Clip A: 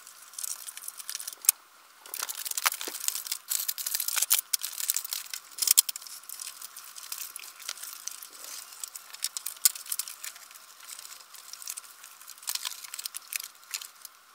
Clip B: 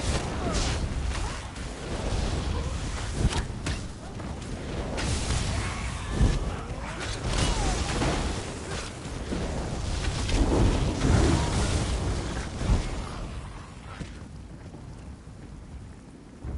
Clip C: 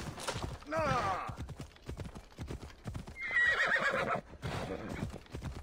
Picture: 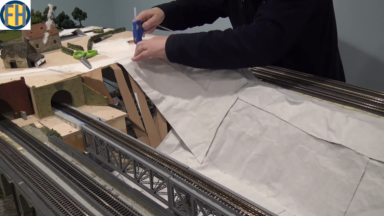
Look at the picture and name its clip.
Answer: A